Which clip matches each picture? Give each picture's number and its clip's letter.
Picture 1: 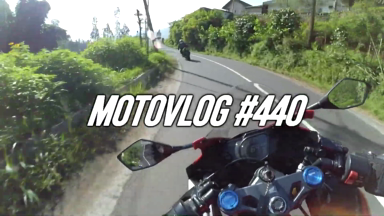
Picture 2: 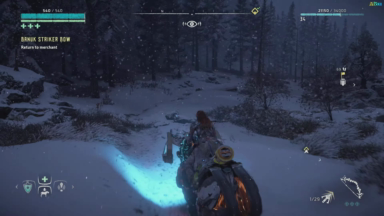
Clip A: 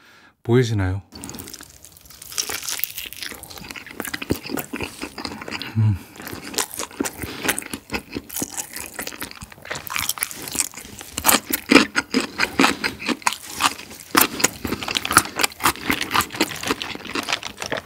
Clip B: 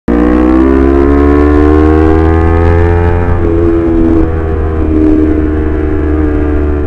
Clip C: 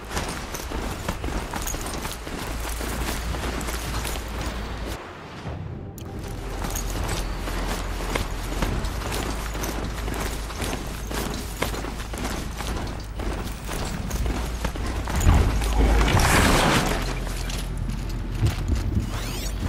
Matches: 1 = B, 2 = C